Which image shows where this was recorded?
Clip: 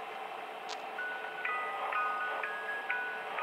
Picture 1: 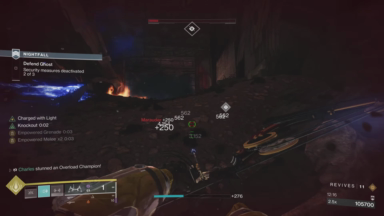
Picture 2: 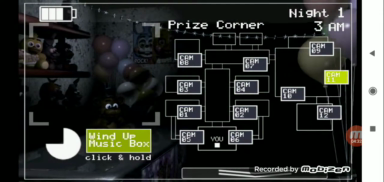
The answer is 2